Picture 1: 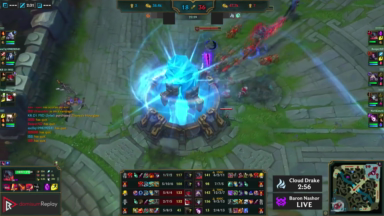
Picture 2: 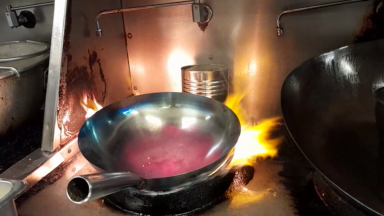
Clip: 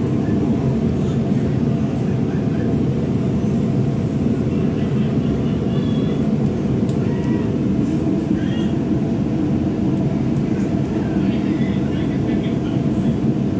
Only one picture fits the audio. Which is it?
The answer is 2